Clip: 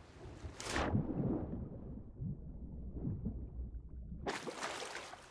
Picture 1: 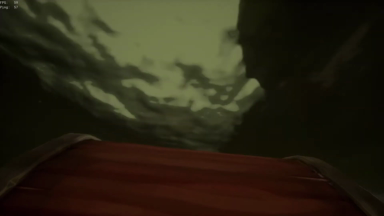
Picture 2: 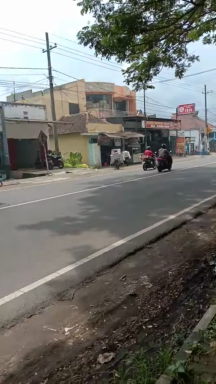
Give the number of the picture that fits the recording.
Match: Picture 1